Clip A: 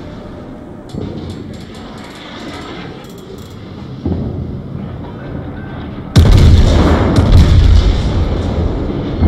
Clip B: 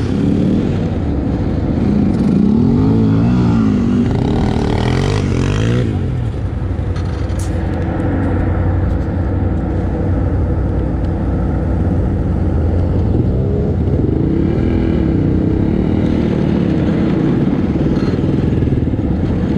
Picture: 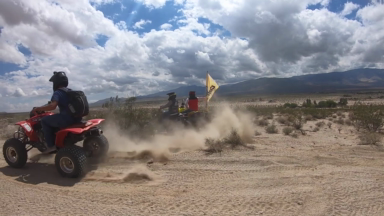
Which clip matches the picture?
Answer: B